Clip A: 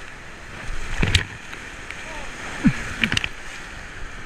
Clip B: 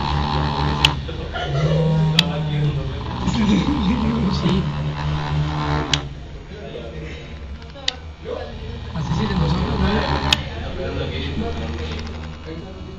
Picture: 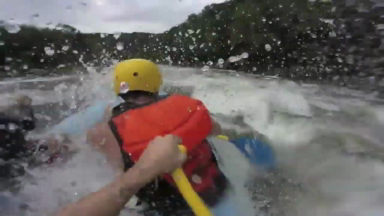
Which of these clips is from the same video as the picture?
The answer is A